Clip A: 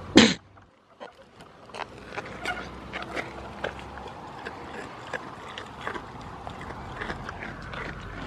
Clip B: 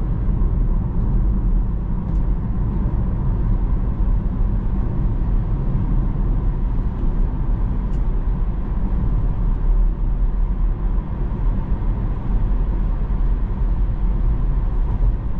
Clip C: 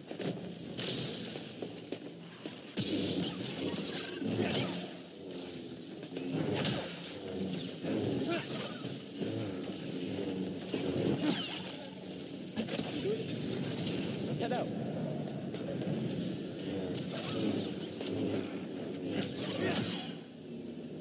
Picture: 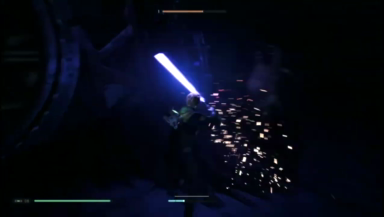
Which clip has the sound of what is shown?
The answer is C